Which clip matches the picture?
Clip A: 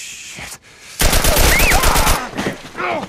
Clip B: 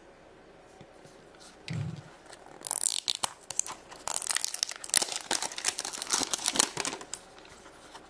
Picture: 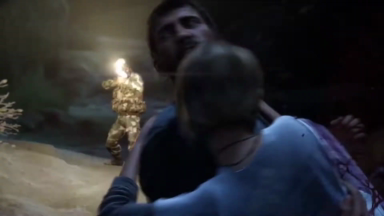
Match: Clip A